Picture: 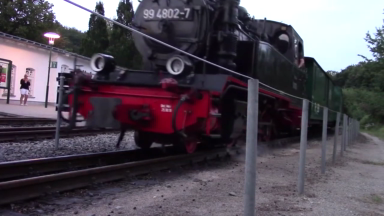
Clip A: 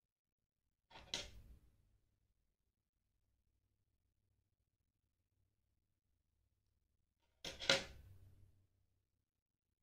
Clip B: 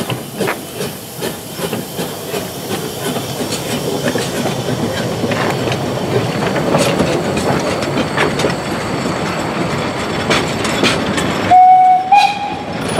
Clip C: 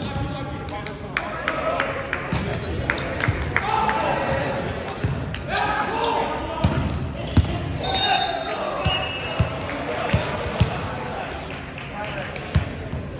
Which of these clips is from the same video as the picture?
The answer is B